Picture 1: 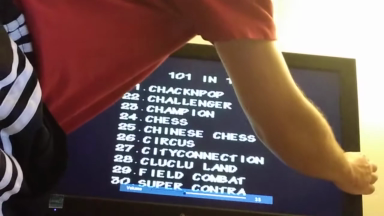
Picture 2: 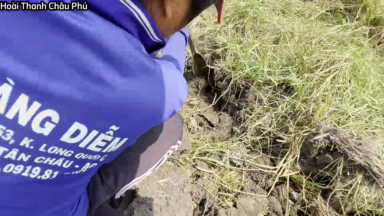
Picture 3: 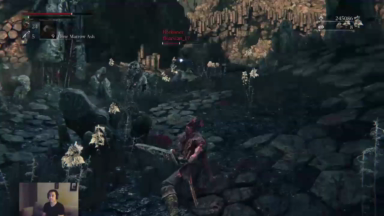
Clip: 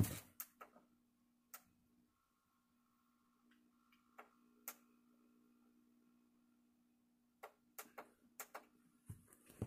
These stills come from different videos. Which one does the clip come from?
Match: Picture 1